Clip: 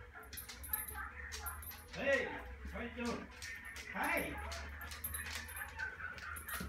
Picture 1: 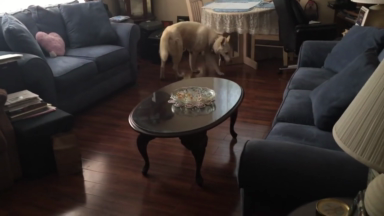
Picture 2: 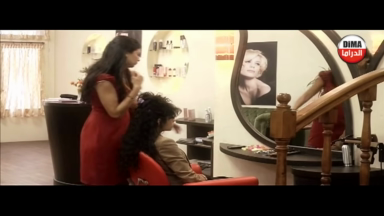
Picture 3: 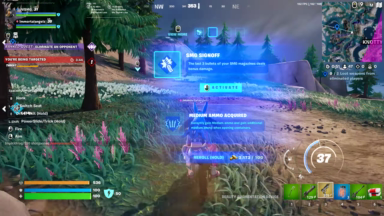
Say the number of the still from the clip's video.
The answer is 1